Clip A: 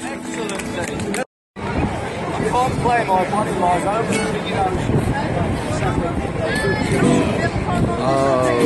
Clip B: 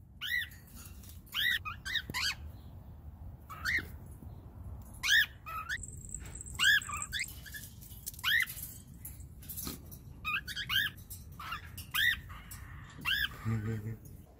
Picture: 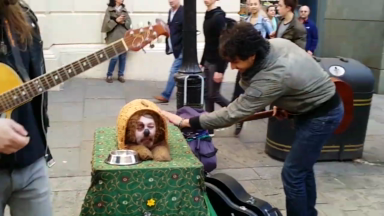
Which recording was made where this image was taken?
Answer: A